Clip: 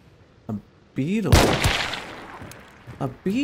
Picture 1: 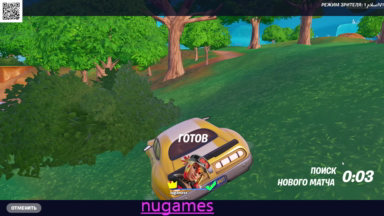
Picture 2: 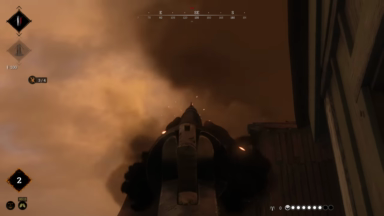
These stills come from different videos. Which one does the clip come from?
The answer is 2